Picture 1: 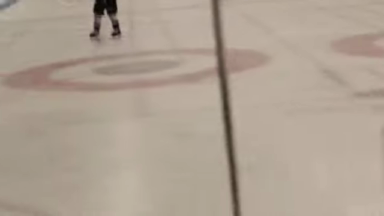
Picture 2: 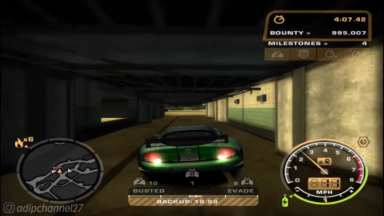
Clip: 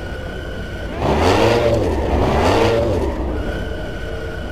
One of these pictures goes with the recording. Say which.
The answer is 2